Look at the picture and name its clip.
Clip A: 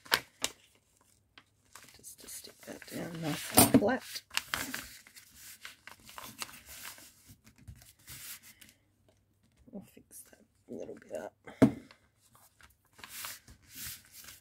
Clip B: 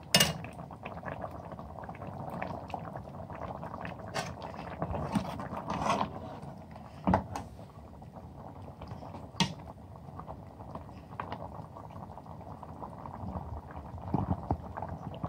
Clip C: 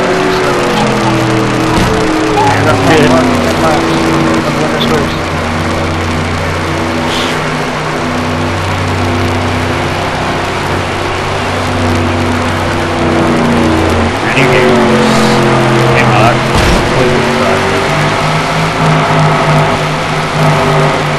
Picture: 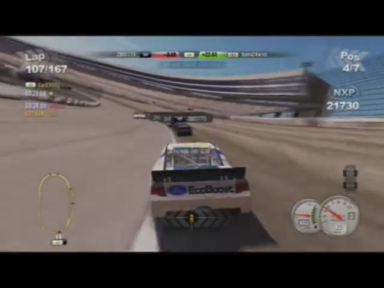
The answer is C